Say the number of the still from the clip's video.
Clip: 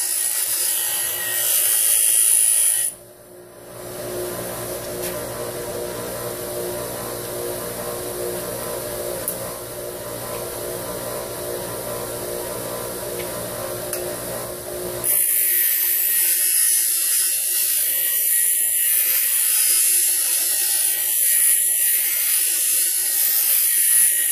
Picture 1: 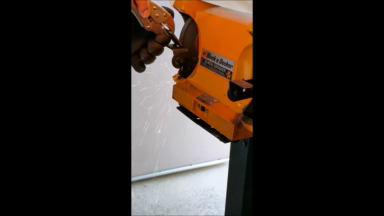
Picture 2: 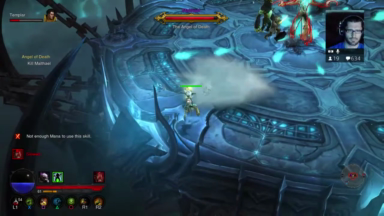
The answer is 1